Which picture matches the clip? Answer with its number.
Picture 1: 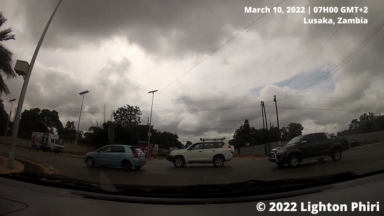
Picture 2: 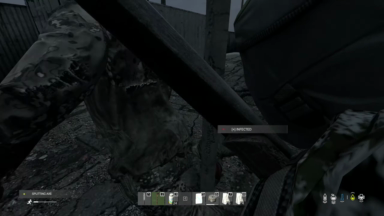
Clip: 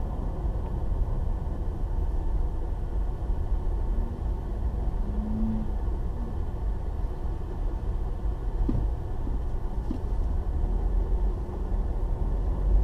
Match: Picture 1